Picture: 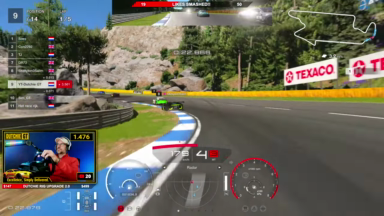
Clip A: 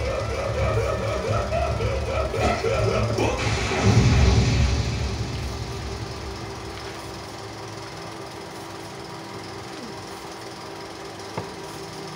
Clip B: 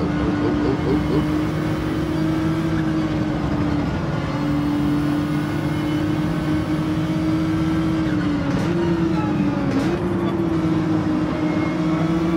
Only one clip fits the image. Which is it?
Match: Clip B